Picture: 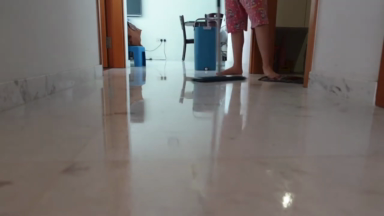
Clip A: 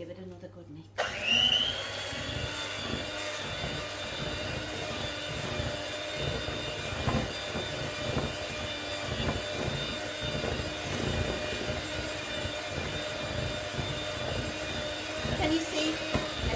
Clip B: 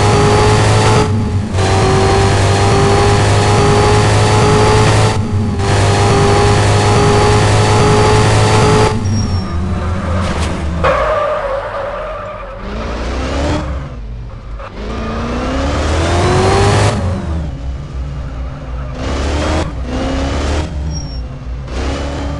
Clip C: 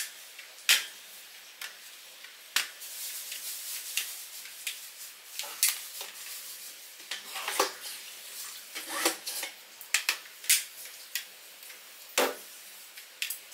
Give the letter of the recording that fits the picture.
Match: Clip C